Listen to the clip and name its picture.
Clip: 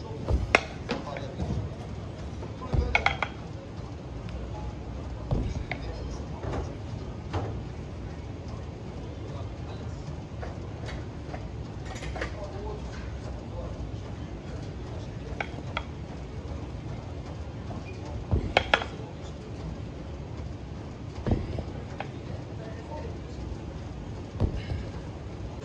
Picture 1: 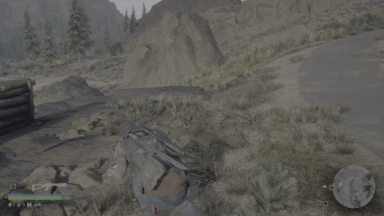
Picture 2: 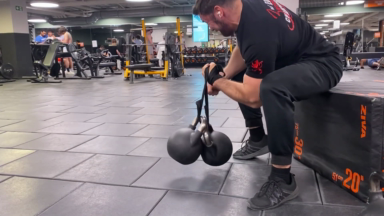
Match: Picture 2